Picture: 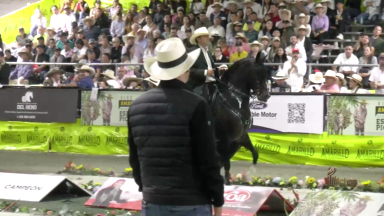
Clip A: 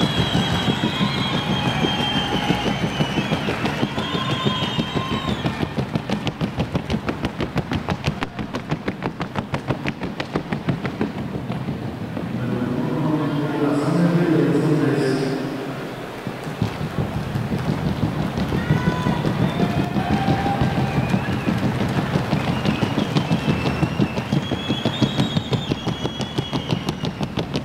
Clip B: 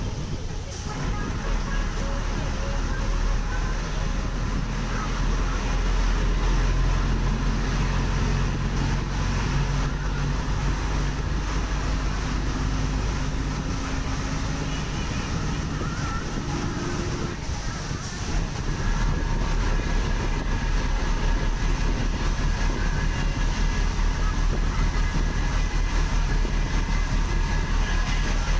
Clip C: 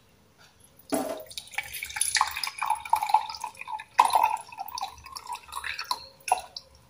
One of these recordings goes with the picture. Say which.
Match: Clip A